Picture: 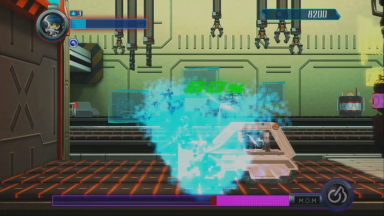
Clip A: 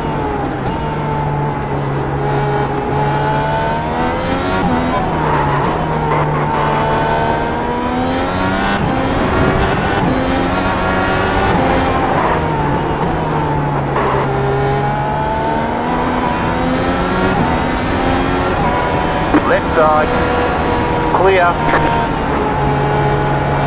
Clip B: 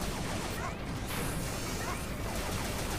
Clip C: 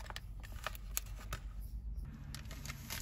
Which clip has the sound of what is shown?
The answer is B